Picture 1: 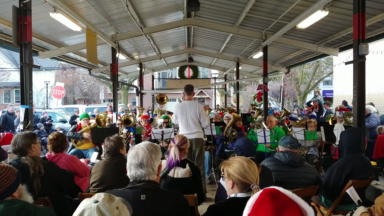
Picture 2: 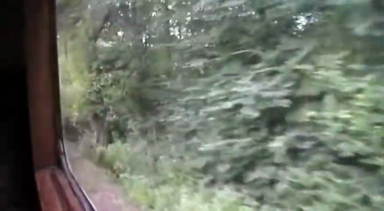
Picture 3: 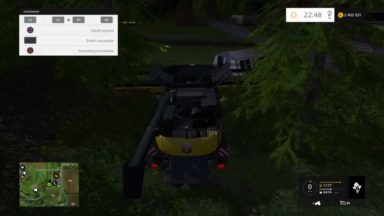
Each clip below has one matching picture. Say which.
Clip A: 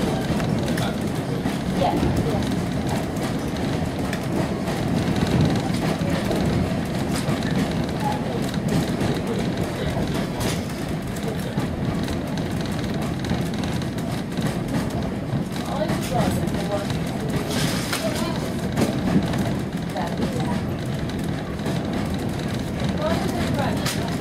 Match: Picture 2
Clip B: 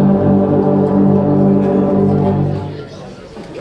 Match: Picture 1